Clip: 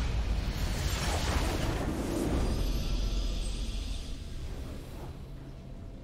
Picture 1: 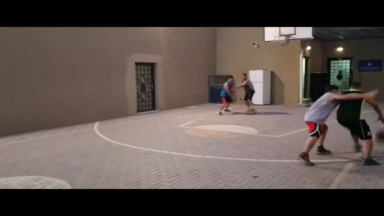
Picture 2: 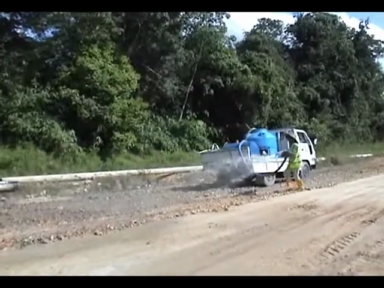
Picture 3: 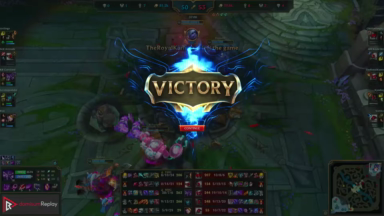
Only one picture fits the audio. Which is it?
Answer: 3